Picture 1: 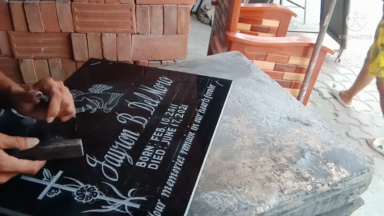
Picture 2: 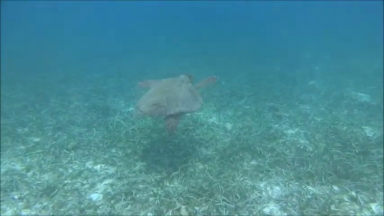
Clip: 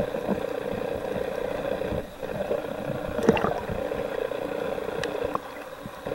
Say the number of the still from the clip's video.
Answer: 2